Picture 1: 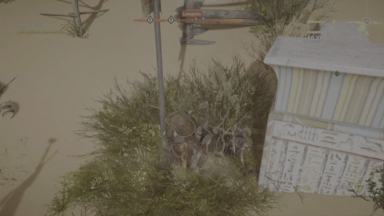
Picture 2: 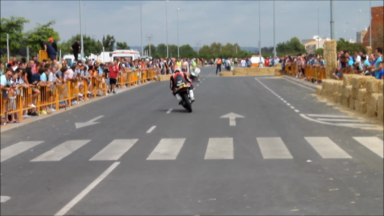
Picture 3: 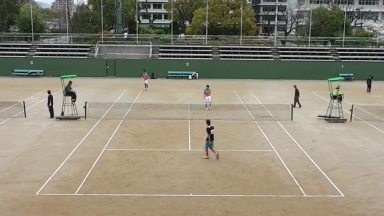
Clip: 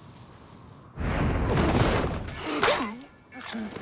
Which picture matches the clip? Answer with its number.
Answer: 1